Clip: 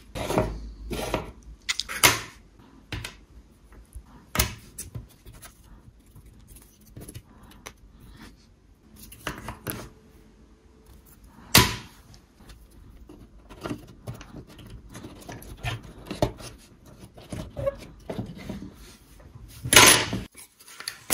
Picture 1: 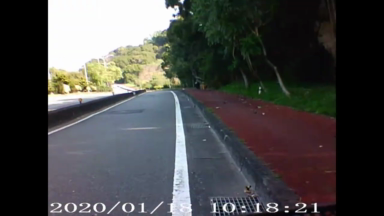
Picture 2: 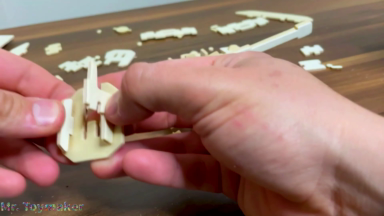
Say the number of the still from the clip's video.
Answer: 2